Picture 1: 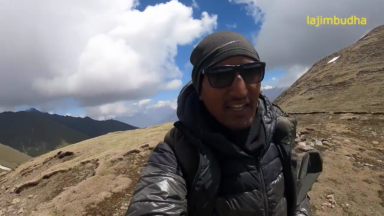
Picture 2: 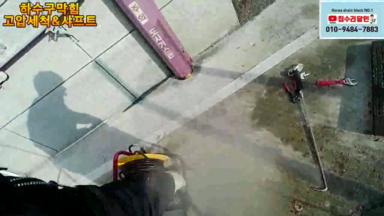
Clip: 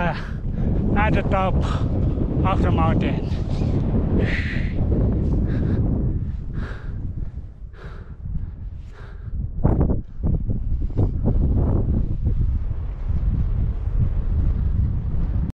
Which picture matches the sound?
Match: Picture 1